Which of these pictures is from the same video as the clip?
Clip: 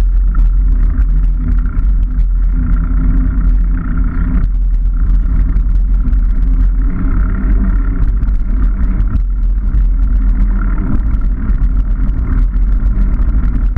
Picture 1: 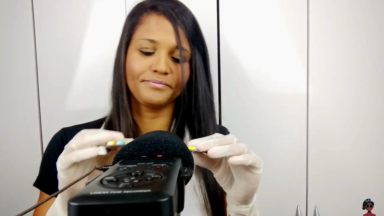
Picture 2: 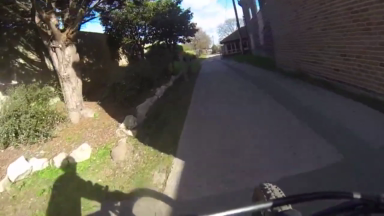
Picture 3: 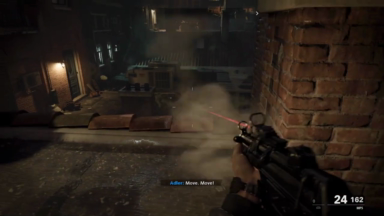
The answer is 2